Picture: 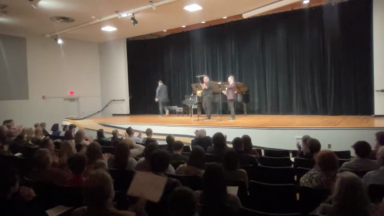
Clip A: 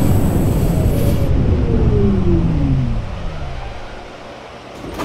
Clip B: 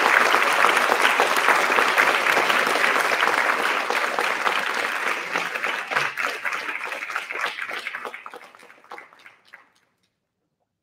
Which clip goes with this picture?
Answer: B